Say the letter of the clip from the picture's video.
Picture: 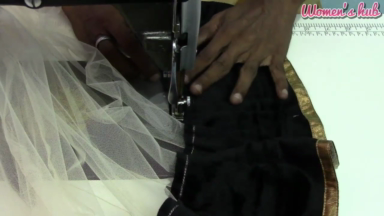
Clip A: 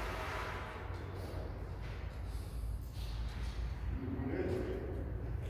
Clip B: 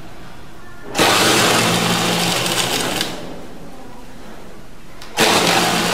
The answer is B